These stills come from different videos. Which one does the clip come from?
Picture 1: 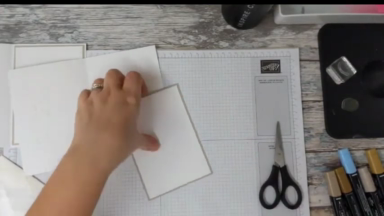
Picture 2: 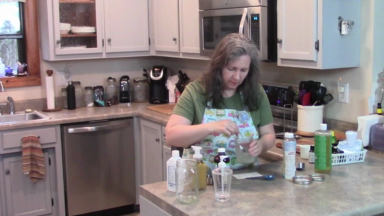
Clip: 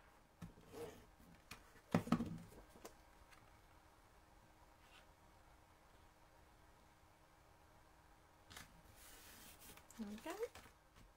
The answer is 1